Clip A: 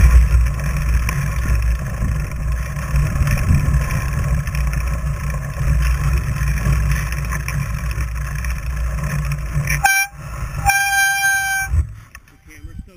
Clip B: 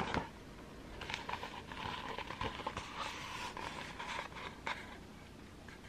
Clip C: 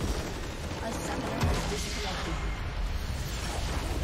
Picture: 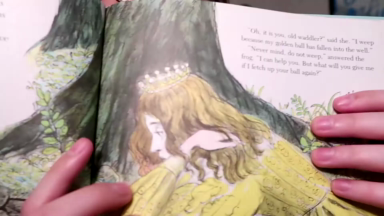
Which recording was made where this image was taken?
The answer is B